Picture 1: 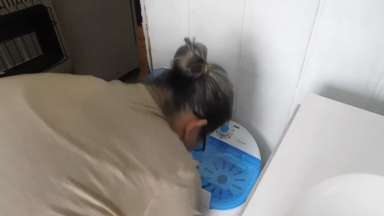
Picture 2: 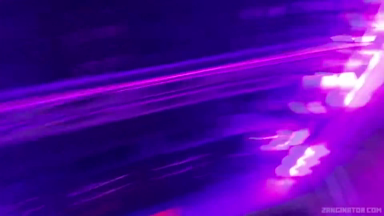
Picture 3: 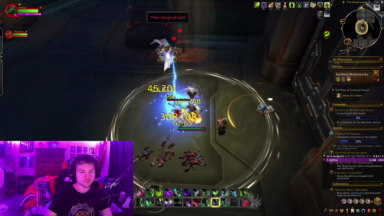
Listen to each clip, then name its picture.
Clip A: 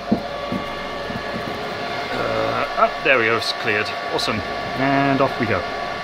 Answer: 2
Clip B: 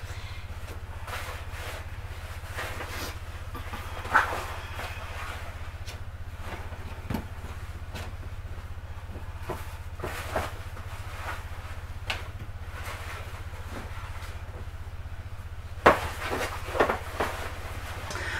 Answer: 1